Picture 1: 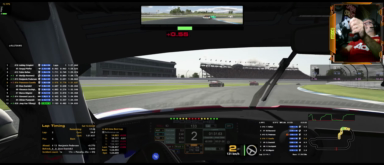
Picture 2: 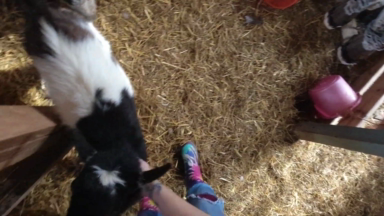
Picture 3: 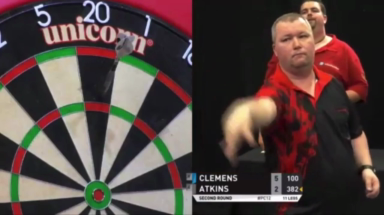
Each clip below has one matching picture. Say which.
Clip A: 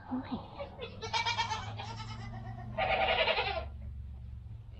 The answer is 2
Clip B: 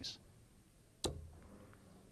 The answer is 3